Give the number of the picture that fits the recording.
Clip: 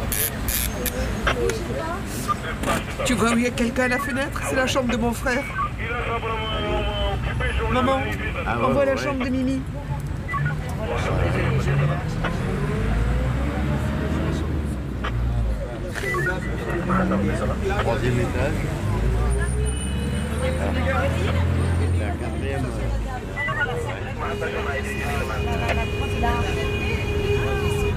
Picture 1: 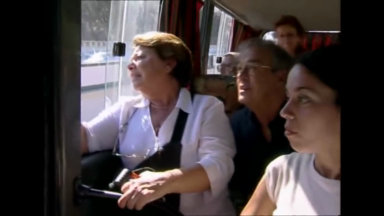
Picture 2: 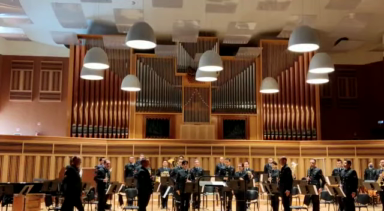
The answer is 1